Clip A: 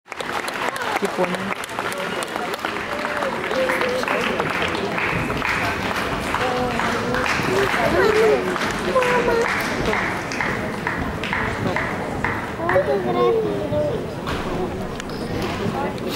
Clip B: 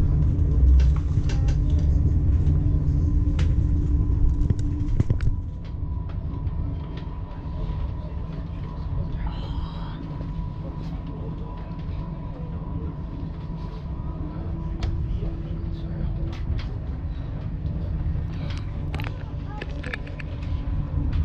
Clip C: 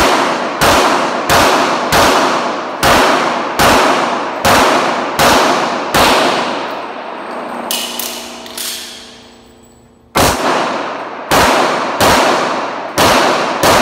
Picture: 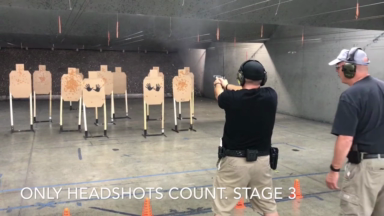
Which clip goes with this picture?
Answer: C